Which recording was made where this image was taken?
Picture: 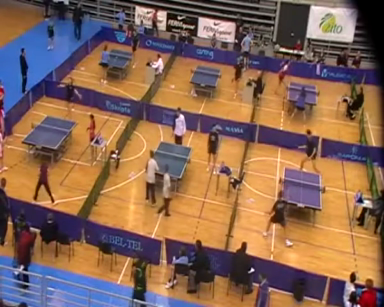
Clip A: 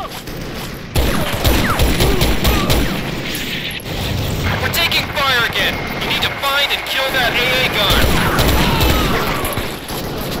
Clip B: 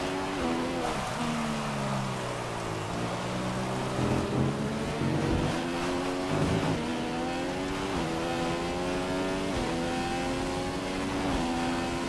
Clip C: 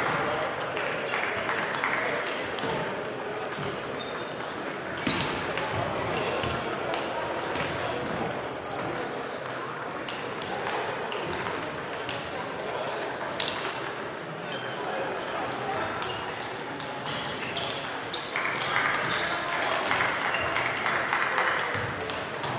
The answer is C